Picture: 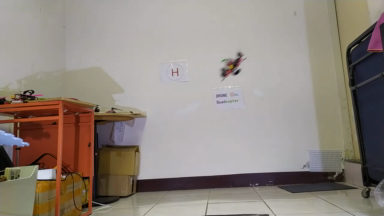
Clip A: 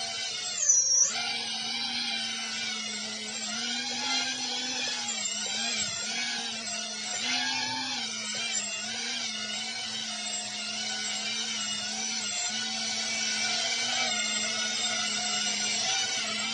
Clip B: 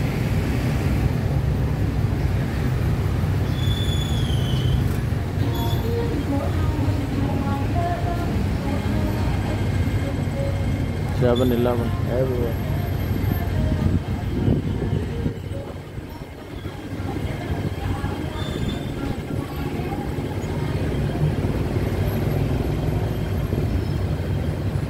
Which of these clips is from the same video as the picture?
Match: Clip A